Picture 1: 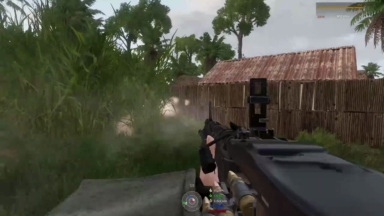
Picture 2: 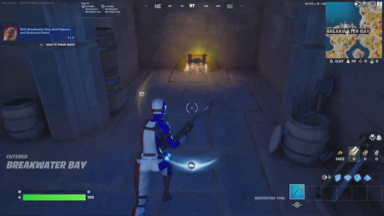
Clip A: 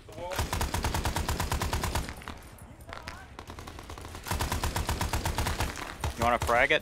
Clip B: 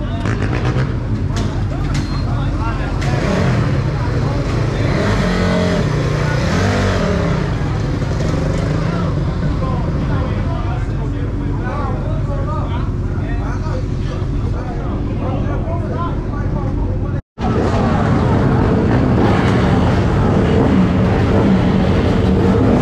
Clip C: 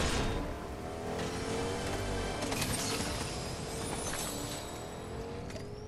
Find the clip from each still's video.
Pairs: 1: A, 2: C